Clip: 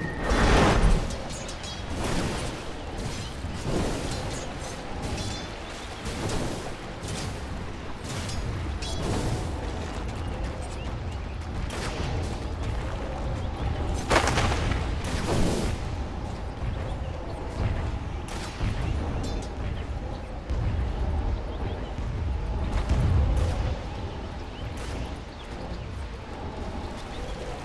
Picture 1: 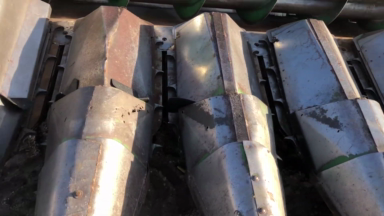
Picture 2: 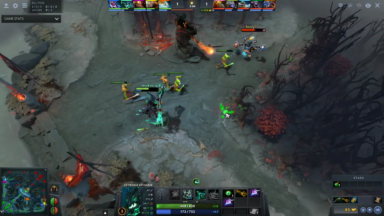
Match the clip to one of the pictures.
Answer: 2